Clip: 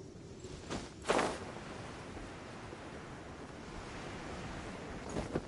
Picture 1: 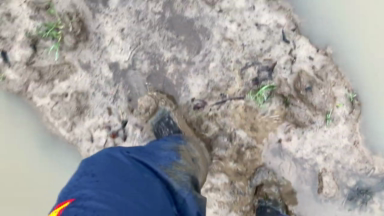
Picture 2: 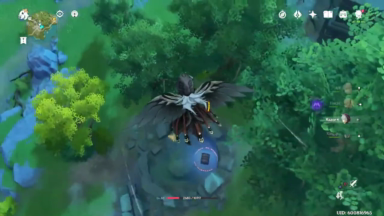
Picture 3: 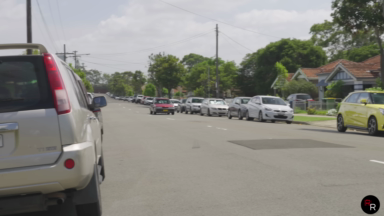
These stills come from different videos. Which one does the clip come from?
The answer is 2